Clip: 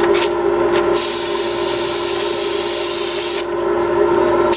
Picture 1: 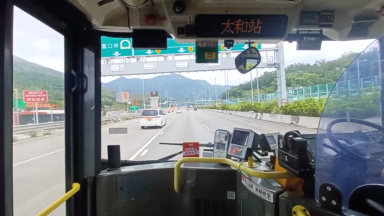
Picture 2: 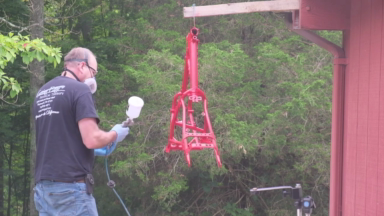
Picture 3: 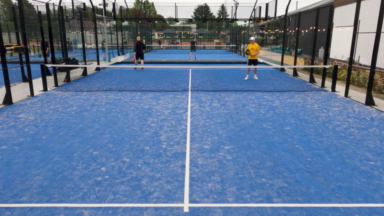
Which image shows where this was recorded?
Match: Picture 2